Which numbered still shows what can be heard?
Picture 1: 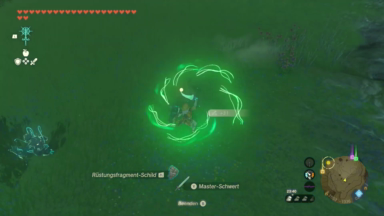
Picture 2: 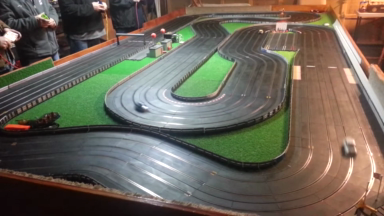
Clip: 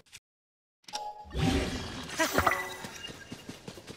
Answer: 1